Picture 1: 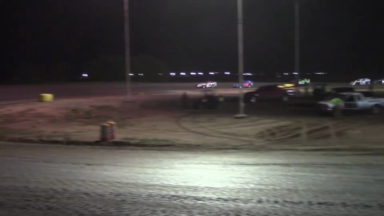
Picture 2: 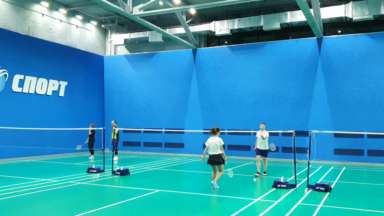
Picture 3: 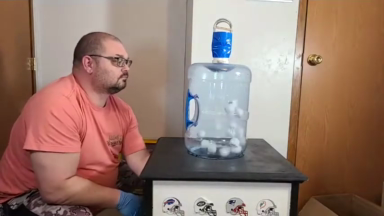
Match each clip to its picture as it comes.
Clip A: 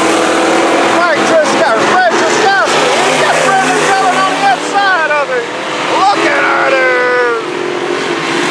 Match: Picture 1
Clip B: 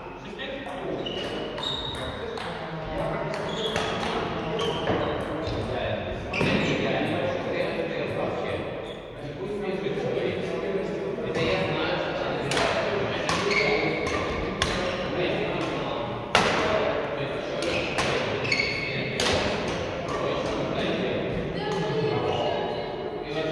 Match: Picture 2